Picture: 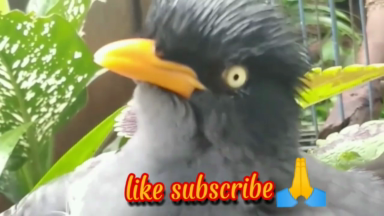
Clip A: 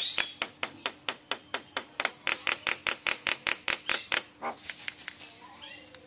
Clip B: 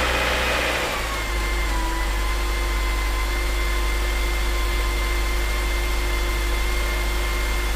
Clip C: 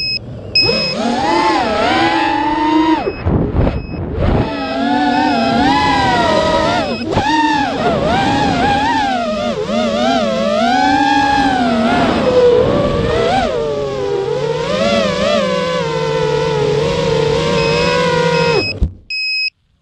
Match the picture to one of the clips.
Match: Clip A